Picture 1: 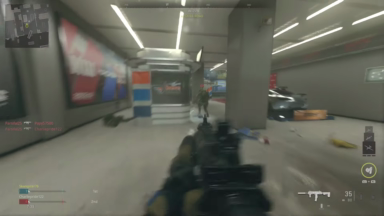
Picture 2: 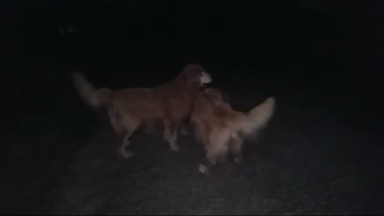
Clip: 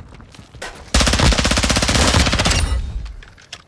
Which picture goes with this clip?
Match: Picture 1